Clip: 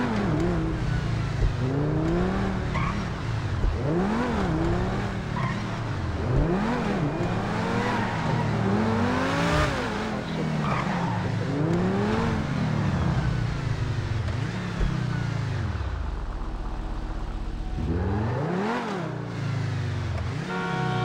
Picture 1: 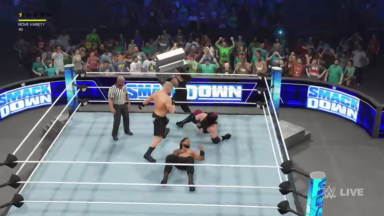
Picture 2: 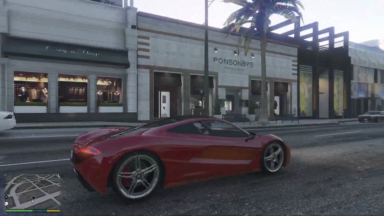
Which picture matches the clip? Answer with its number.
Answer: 2